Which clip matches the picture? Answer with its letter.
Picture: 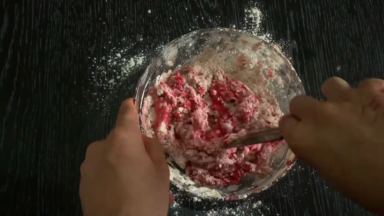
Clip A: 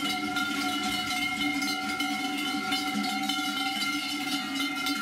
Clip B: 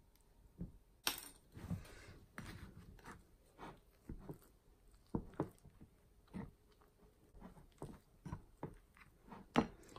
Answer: B